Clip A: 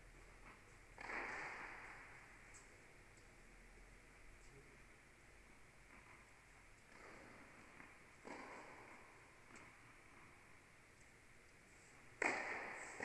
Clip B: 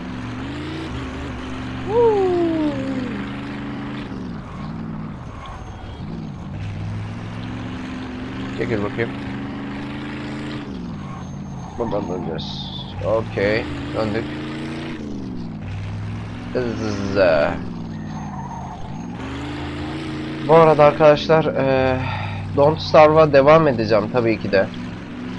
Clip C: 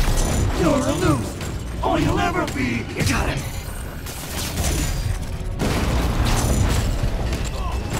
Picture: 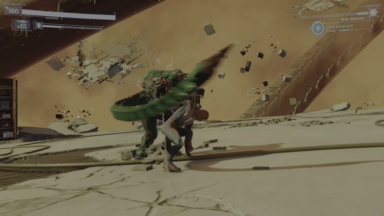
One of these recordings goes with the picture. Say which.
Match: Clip C